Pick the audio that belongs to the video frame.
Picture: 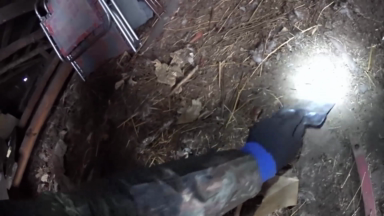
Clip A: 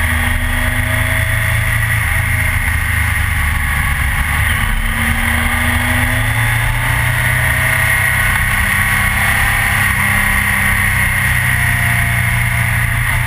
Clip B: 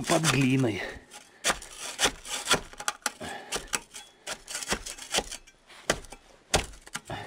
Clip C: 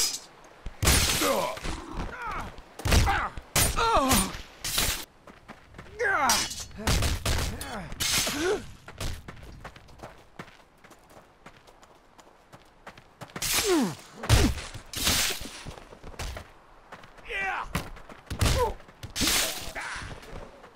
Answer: B